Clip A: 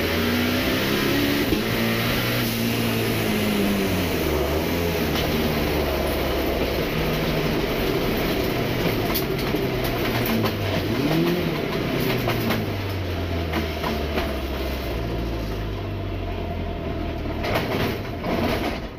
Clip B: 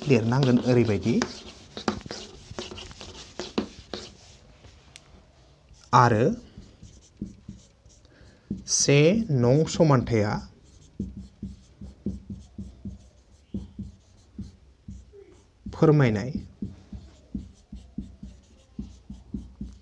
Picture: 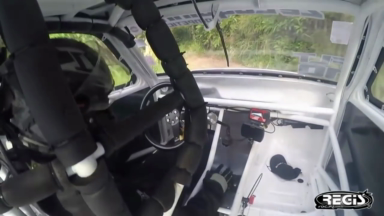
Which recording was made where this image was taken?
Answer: A